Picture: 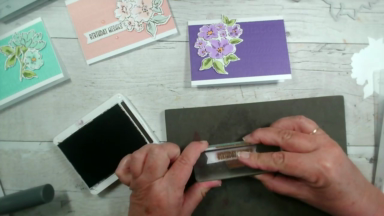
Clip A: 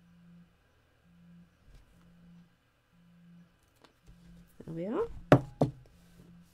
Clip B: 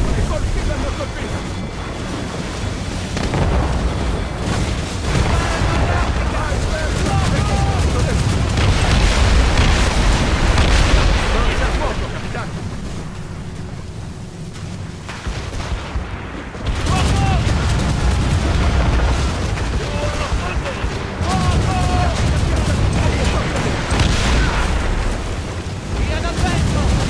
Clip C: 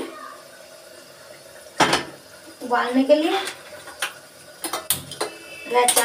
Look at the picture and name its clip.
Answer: A